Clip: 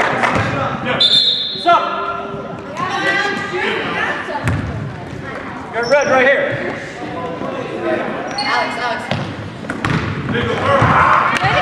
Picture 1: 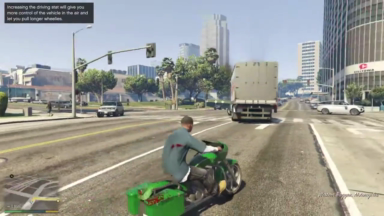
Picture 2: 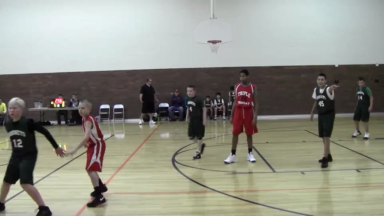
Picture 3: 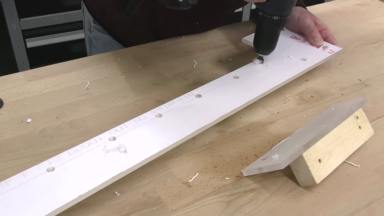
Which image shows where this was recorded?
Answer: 2